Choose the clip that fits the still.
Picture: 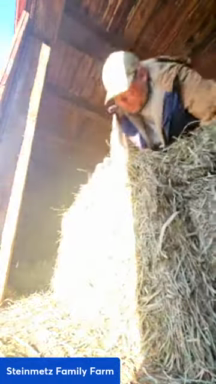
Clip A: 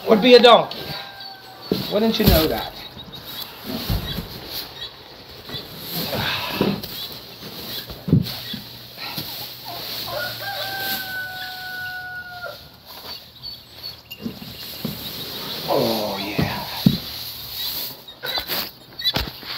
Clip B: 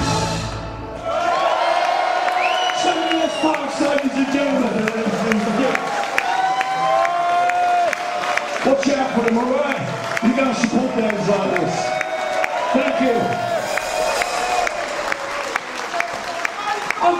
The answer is A